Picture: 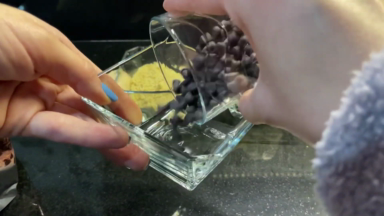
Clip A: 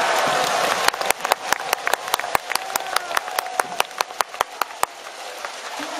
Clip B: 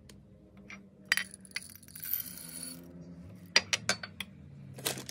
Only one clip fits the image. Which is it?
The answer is B